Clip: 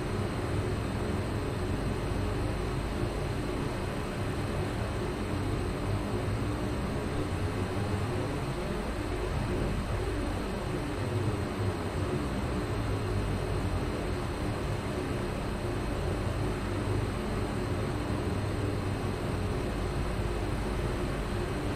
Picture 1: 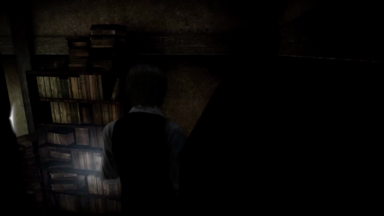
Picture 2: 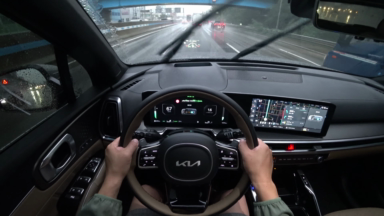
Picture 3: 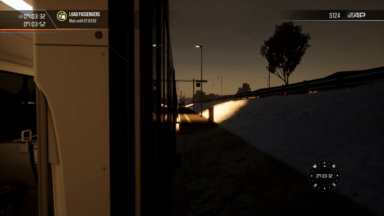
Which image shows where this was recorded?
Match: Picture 3